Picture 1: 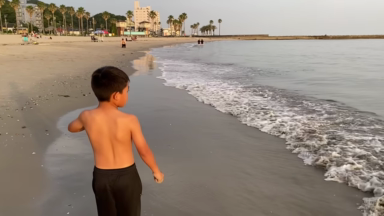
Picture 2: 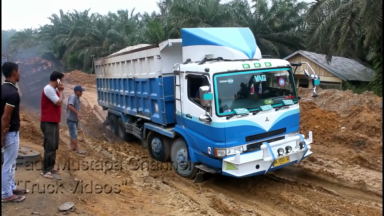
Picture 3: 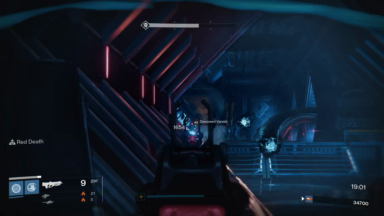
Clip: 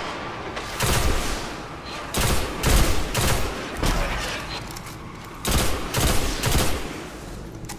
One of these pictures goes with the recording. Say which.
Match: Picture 3